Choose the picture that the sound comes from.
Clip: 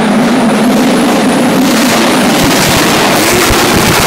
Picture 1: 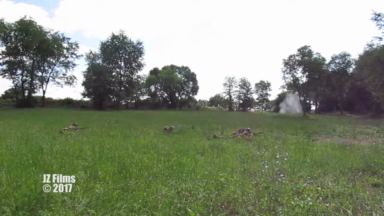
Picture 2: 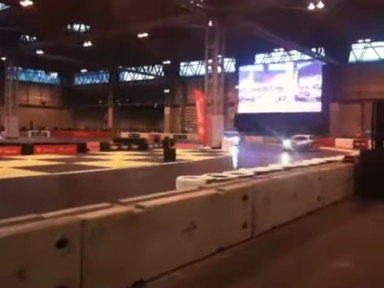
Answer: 2